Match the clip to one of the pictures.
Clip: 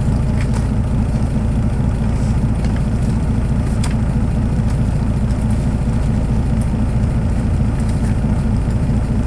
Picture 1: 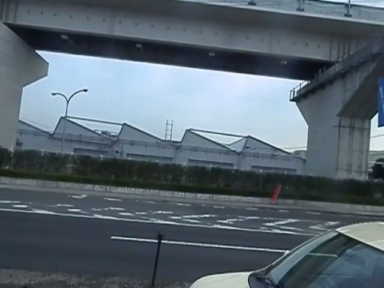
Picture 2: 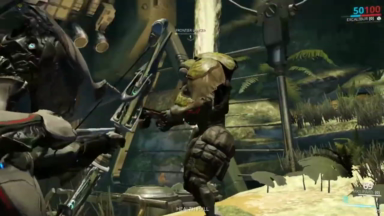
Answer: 1